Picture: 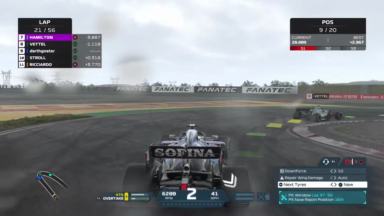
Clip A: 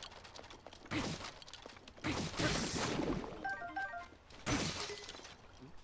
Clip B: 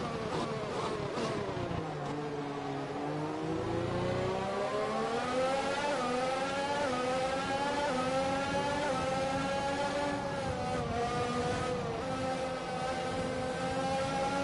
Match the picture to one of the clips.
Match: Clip B